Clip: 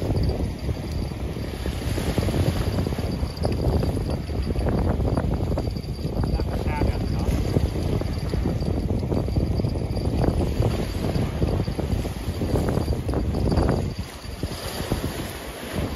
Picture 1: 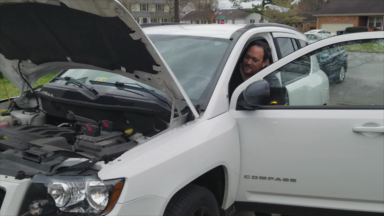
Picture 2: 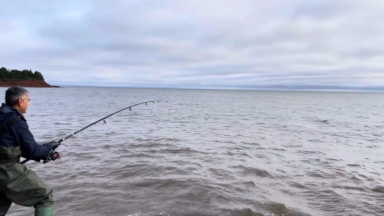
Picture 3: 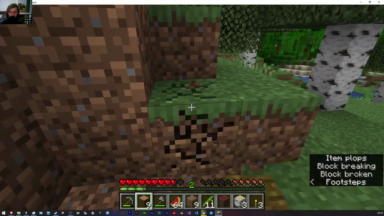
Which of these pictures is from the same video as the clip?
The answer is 2